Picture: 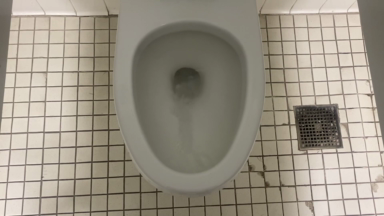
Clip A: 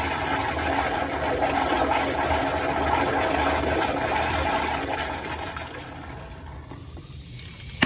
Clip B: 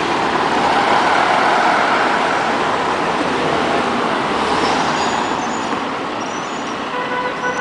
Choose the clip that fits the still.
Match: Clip A